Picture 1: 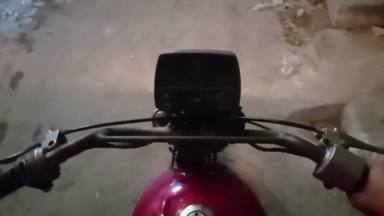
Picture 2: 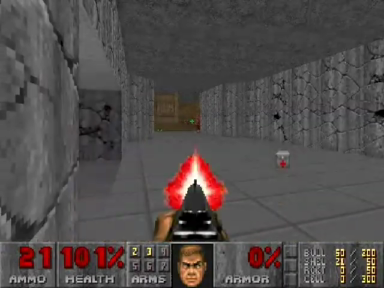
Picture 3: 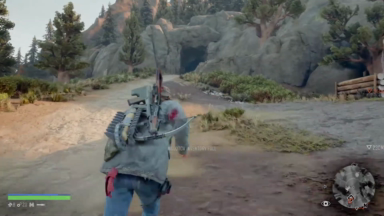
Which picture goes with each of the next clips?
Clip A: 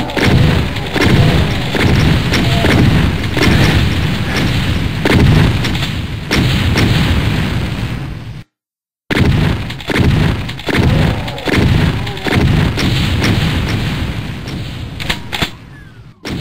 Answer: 2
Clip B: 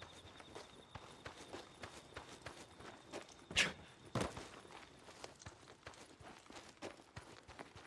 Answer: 3